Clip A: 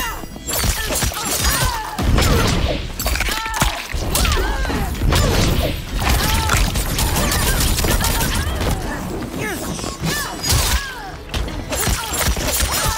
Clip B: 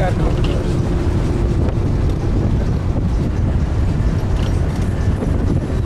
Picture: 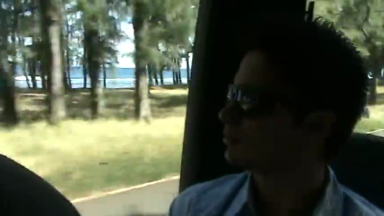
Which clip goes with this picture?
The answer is B